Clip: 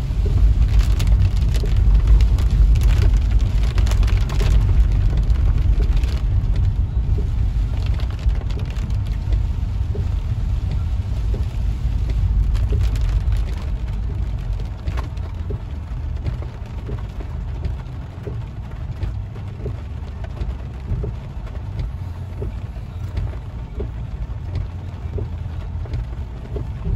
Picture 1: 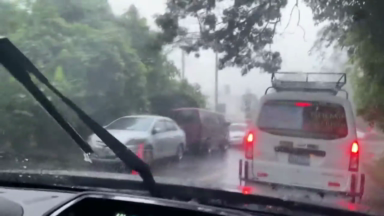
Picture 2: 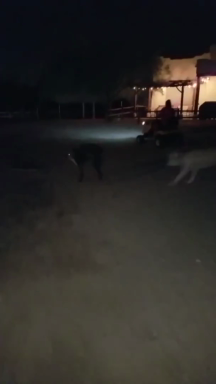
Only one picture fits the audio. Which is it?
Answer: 1